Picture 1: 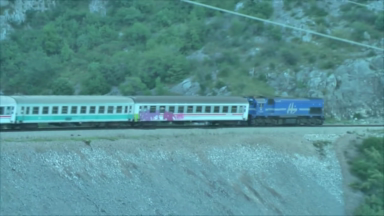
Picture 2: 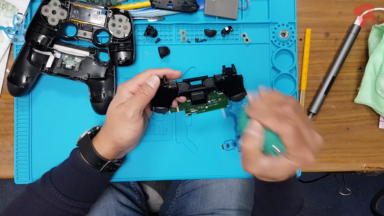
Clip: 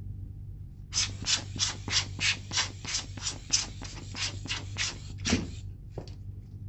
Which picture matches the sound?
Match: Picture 2